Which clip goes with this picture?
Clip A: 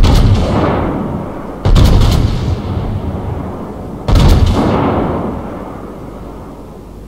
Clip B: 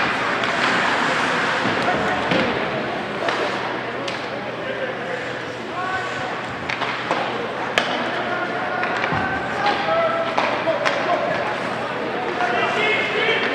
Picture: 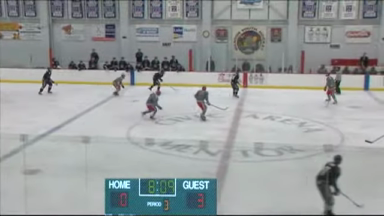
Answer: B